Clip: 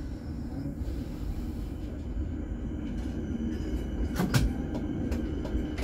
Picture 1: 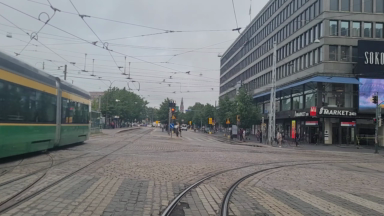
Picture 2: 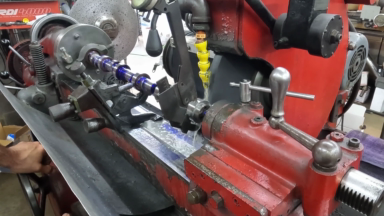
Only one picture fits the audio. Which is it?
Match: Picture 1